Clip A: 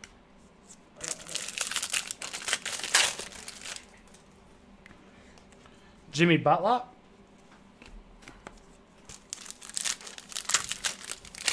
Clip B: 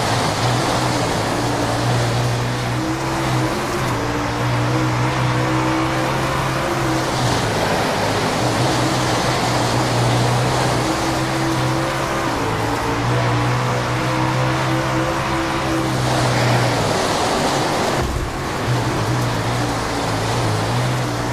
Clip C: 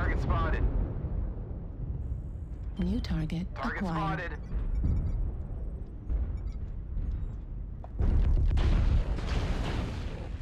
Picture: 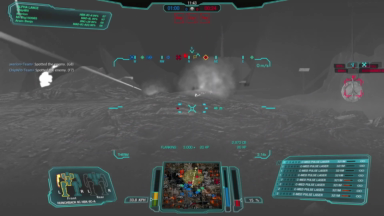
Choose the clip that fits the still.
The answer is C